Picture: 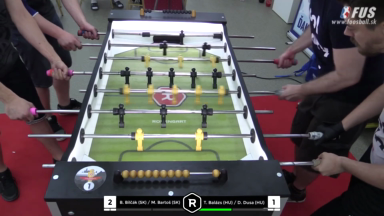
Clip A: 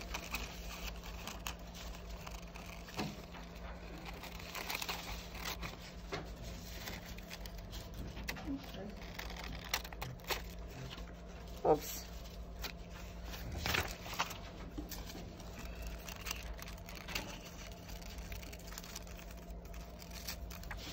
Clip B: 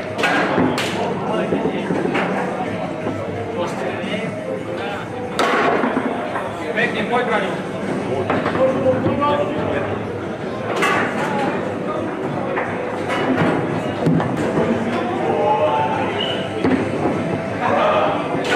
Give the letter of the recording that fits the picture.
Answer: B